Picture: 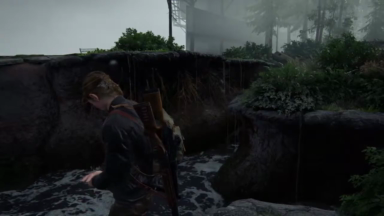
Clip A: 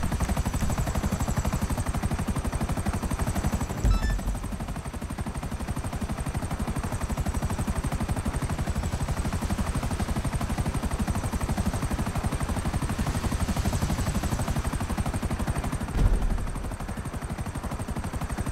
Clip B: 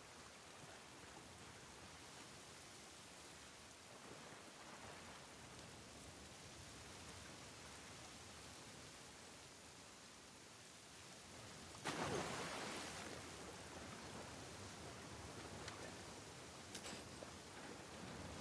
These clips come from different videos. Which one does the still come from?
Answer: B